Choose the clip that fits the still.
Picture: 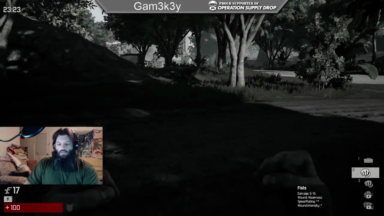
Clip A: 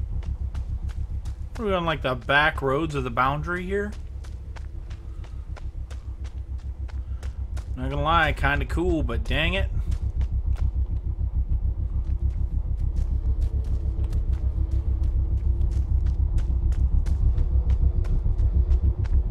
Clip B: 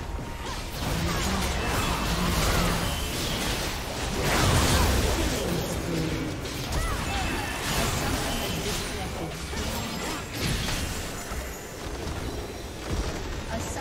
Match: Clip A